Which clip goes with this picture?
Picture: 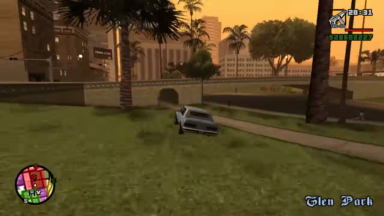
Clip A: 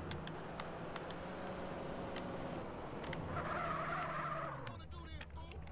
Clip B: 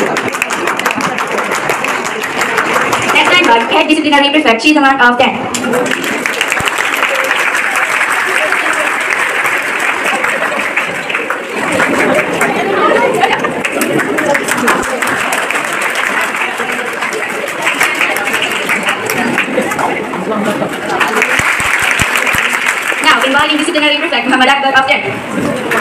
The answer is A